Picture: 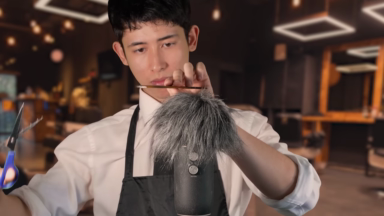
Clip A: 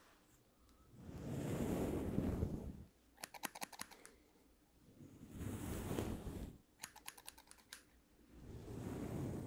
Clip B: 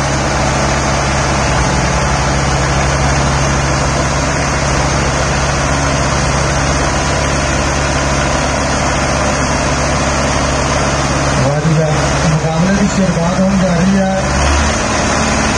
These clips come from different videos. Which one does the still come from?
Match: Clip A